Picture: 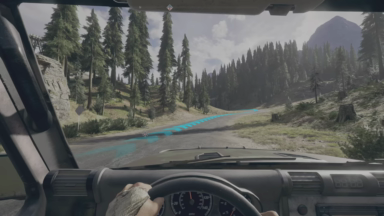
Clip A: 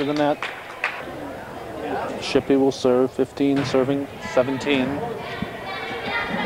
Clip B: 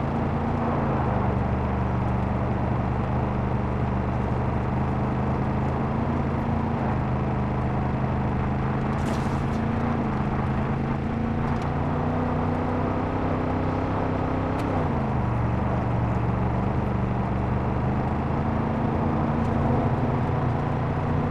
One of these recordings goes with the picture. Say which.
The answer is B